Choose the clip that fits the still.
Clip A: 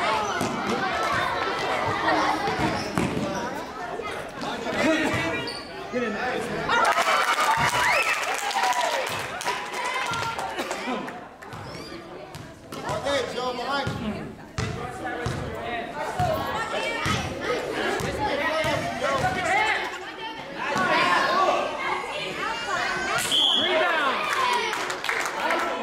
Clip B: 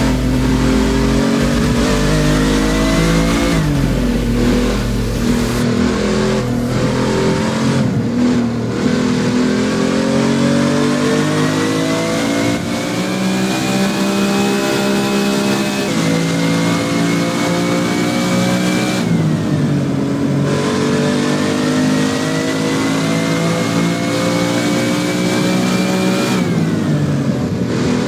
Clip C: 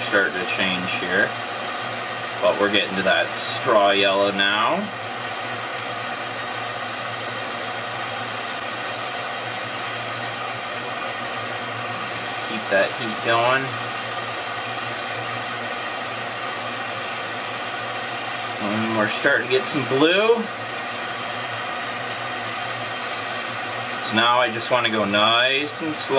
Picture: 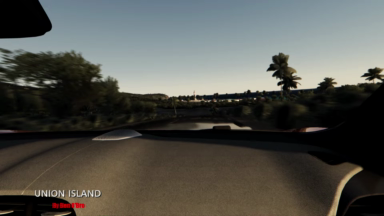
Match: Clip B